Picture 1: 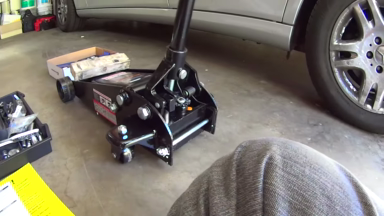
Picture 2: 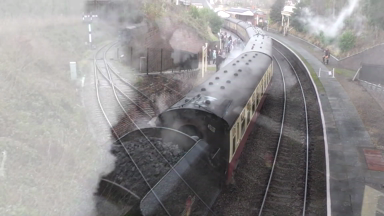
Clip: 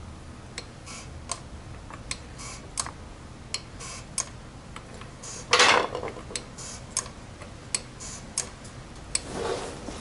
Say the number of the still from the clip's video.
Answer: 1